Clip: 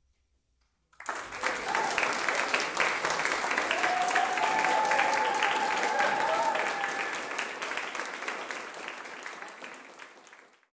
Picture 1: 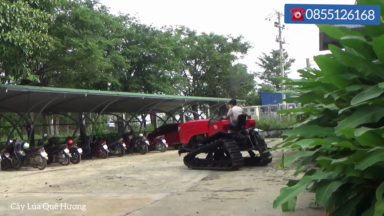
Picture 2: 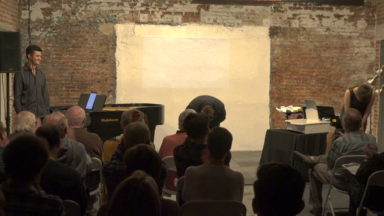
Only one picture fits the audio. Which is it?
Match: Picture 2